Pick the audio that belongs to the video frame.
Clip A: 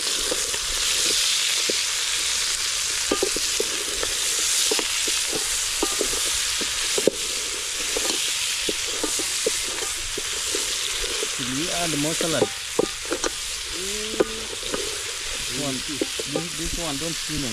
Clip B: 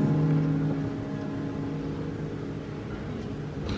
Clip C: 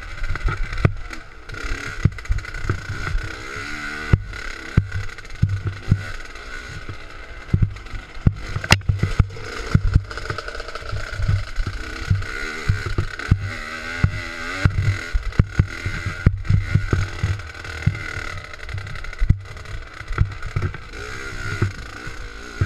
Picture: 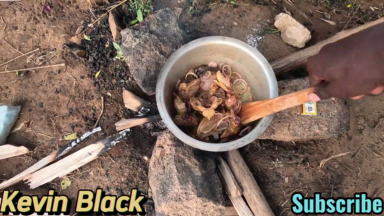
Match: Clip A